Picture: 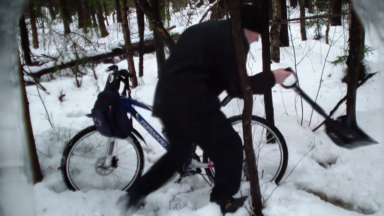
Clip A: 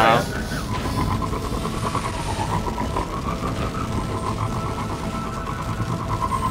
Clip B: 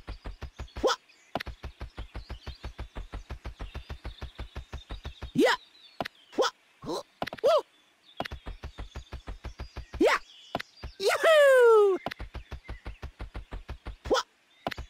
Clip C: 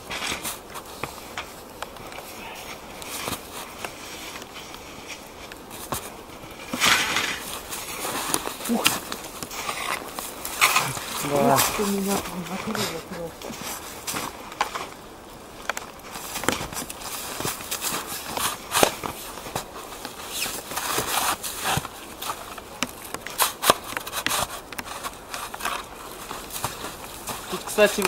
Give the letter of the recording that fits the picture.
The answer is C